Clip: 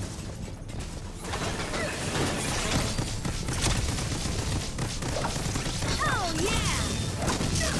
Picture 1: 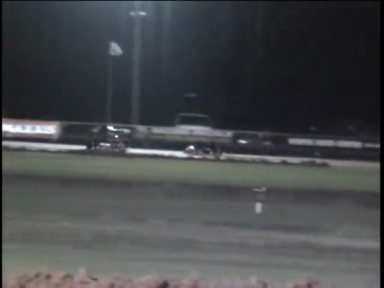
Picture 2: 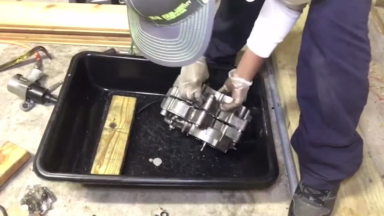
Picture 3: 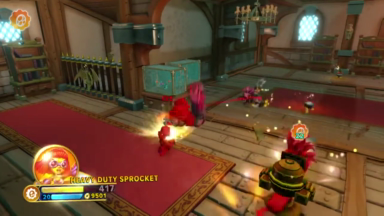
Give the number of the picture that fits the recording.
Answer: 3